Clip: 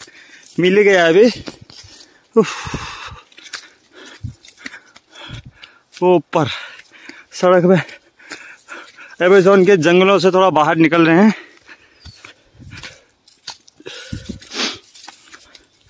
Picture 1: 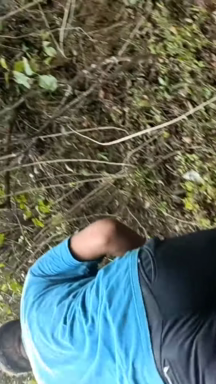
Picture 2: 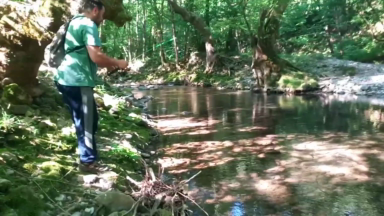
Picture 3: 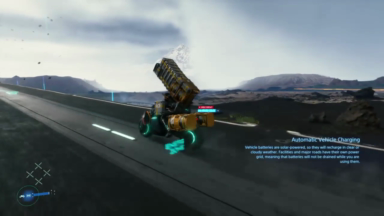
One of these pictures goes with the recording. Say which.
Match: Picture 1